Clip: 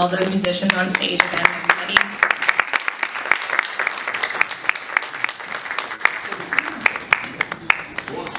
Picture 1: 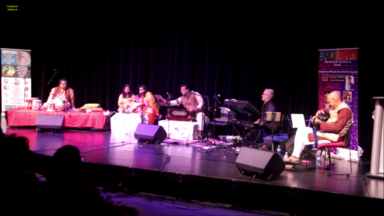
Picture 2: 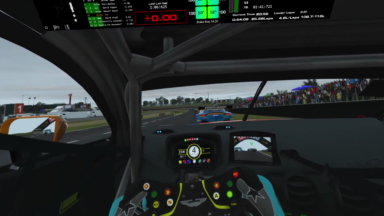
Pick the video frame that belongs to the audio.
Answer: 1